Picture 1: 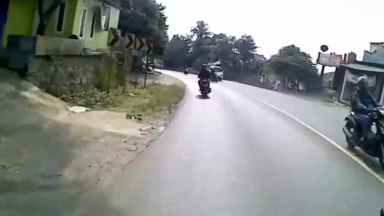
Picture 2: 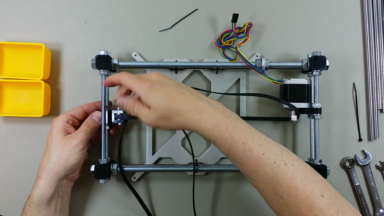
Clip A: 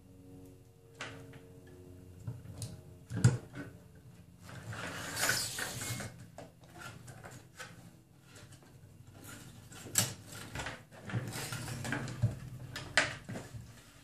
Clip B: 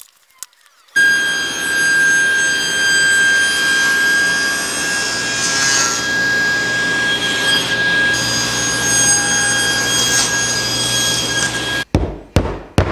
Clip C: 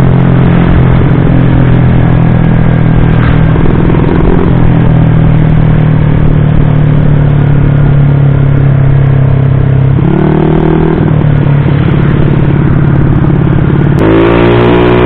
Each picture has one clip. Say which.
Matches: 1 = C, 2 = A